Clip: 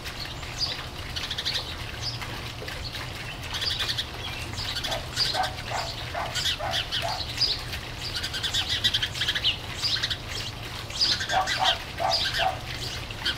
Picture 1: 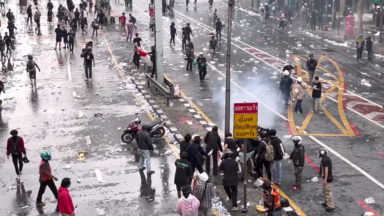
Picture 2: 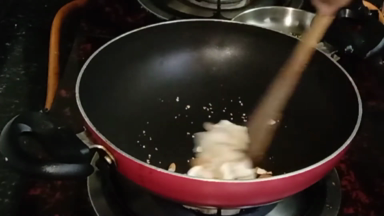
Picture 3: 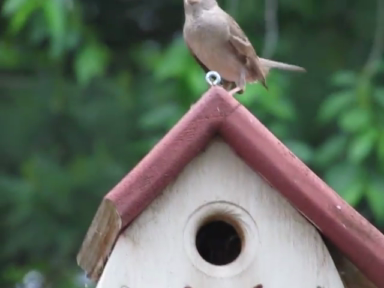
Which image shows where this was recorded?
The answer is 3